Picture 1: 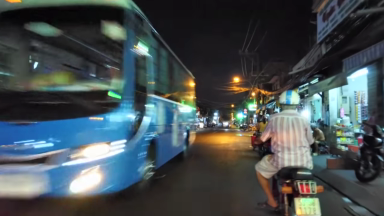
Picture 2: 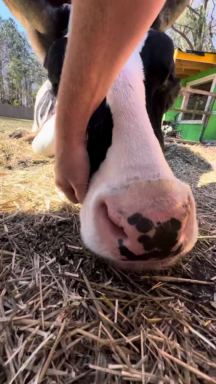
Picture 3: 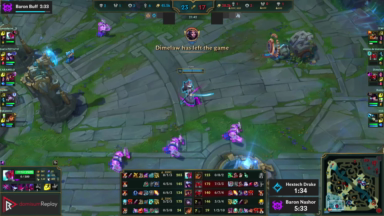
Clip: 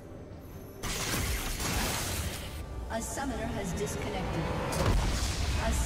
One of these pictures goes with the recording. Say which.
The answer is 3